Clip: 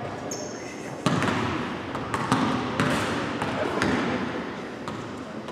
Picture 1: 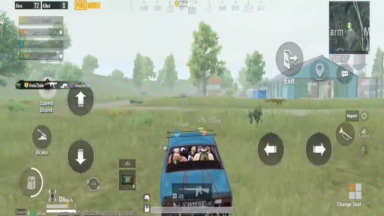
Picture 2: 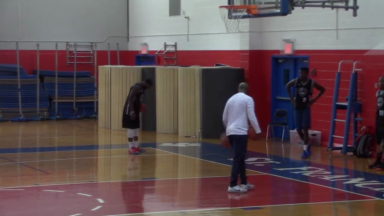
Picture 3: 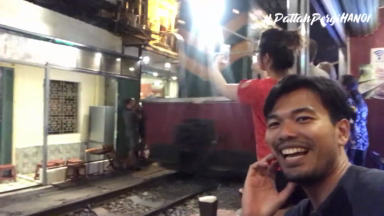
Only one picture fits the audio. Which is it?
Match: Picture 2